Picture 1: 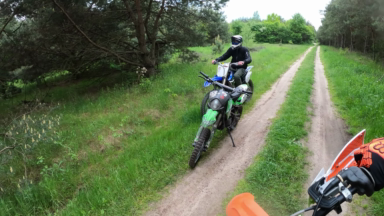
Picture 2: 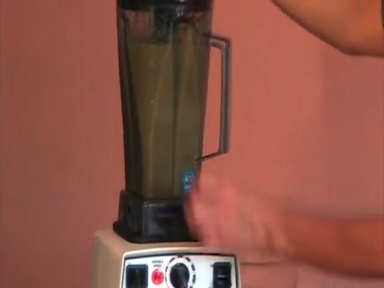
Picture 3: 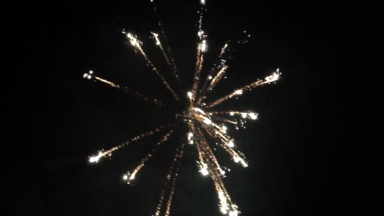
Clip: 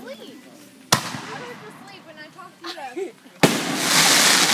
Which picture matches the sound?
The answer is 3